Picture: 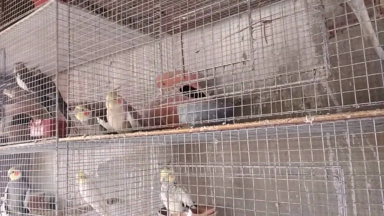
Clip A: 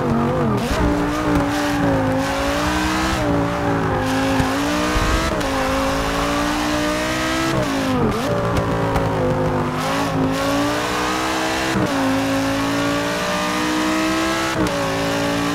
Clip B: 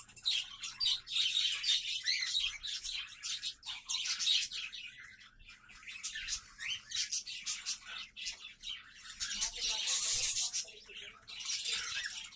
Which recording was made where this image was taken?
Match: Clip B